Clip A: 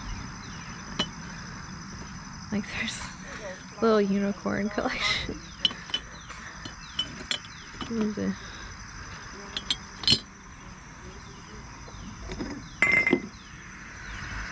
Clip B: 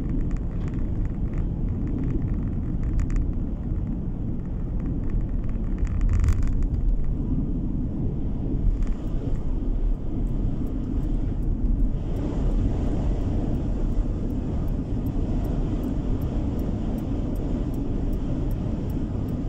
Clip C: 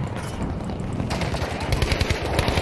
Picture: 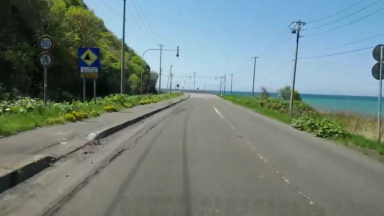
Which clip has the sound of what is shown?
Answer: B